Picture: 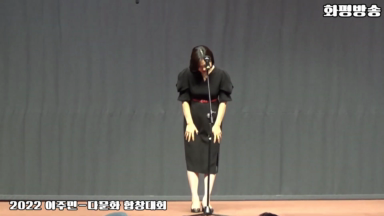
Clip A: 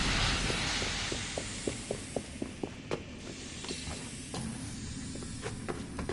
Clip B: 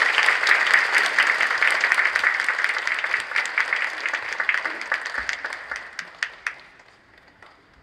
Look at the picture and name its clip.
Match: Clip B